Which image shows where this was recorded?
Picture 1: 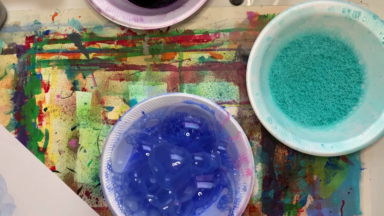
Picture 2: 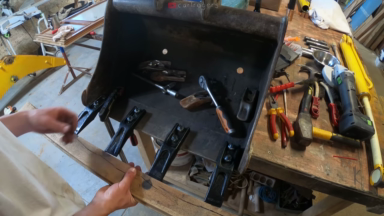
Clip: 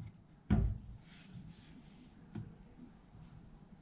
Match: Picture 2